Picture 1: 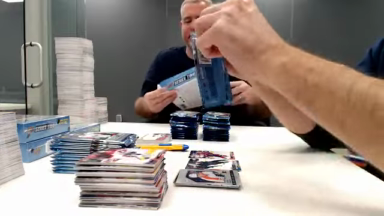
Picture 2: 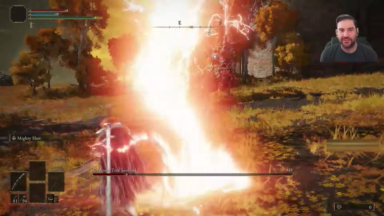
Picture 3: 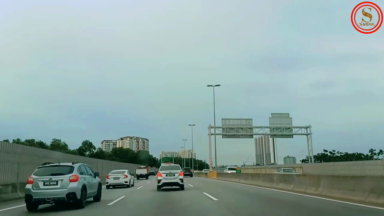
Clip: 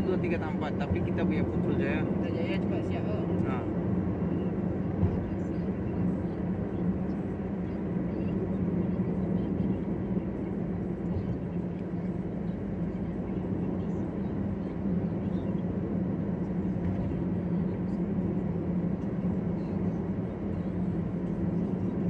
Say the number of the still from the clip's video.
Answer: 3